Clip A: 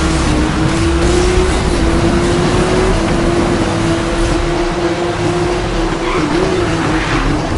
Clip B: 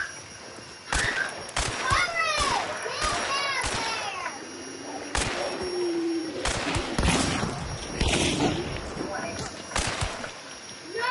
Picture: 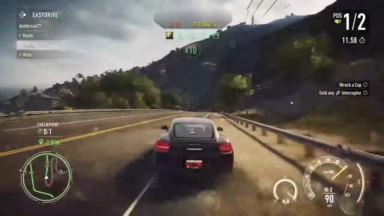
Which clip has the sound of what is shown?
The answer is A